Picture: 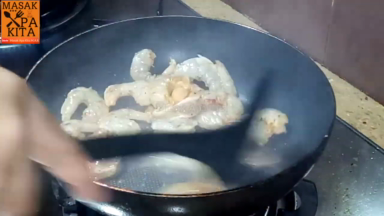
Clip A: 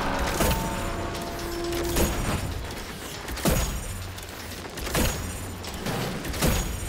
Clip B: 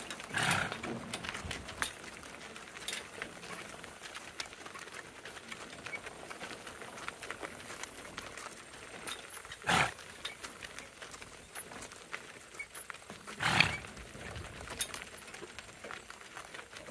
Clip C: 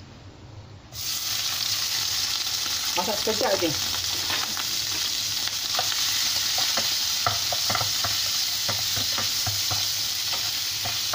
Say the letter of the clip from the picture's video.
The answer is C